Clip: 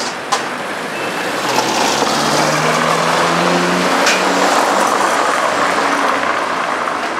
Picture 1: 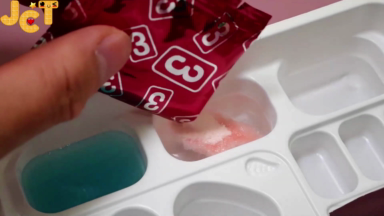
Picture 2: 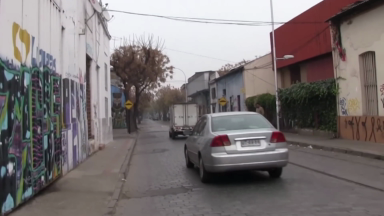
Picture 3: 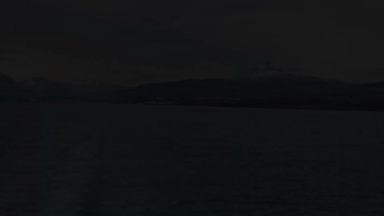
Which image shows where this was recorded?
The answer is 2